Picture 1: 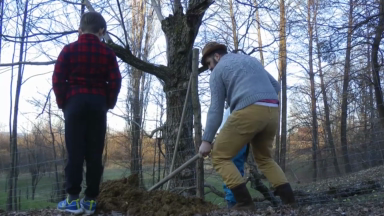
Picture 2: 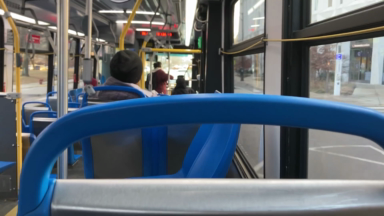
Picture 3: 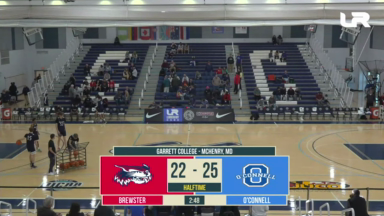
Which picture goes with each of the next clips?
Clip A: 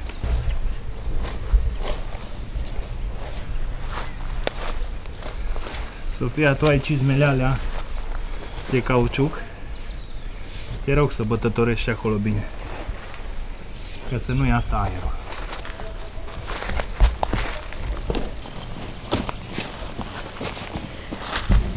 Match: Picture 1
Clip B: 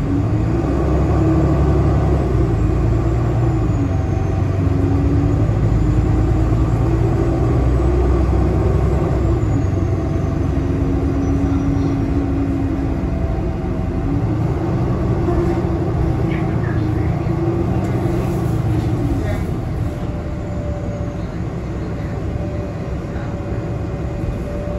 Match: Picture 2